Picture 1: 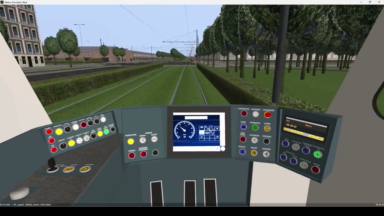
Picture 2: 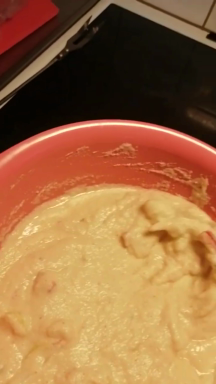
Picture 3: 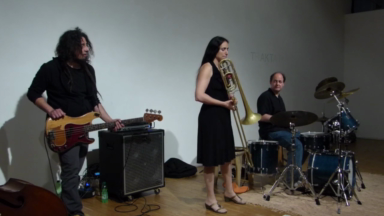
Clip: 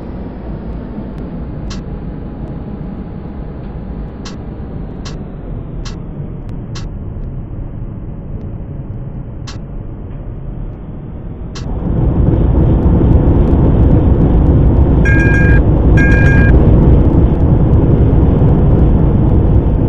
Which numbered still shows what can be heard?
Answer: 1